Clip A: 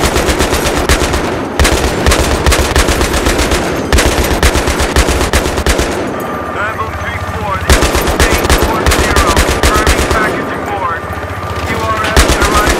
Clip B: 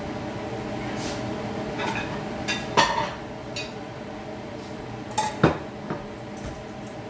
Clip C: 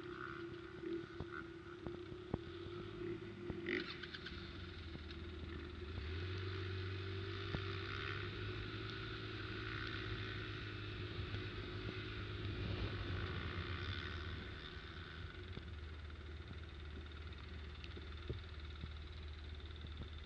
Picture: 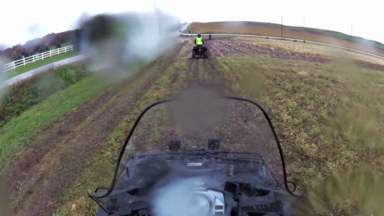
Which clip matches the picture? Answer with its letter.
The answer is C